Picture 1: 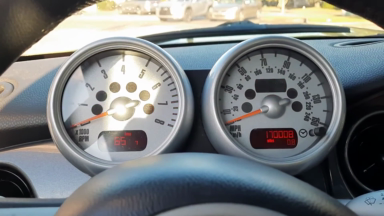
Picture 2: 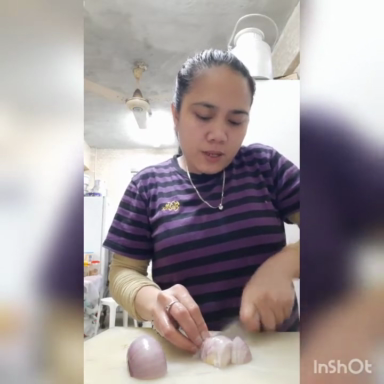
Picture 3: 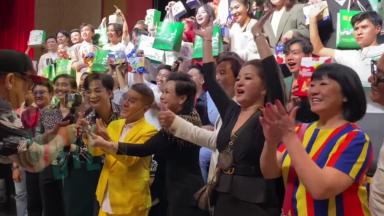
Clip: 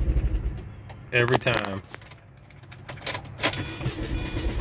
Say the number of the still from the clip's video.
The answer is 1